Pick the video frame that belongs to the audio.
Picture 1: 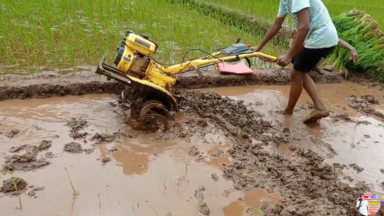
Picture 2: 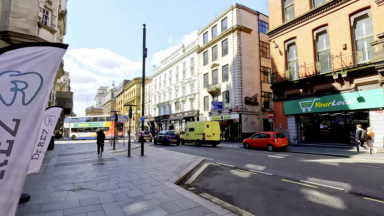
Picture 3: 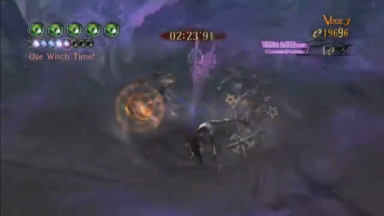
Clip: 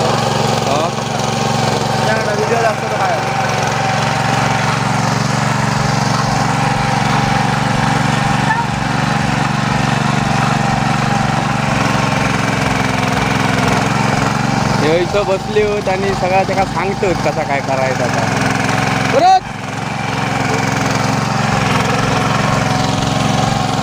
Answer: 1